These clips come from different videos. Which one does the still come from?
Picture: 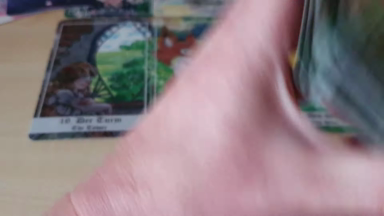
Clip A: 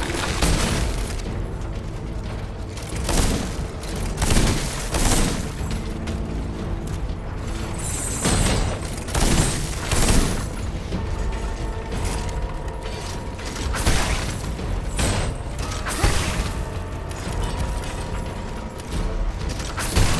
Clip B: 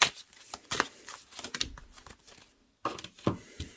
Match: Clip B